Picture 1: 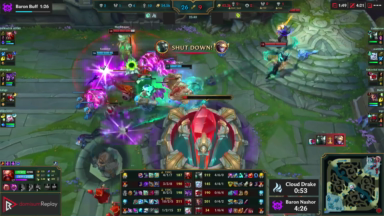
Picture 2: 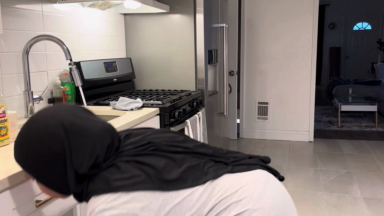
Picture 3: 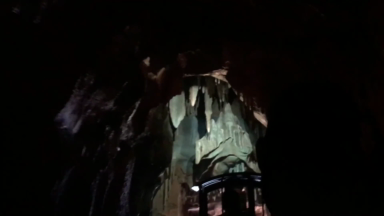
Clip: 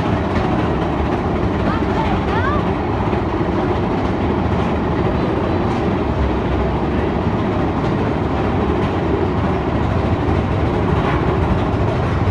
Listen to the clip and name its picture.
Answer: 3